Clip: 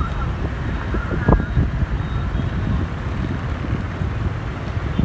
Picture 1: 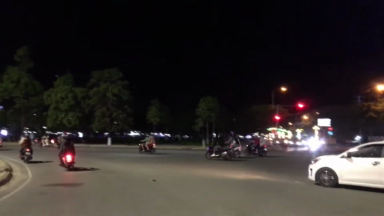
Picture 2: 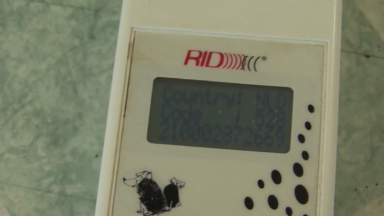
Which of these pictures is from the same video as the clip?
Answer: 1